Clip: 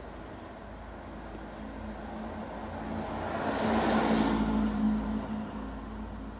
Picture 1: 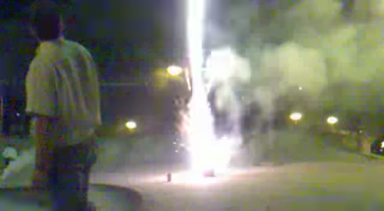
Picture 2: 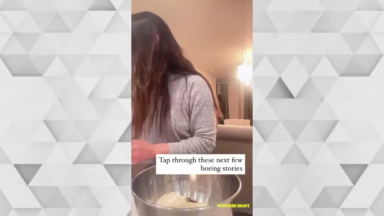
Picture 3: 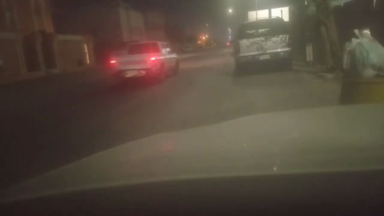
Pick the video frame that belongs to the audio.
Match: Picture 3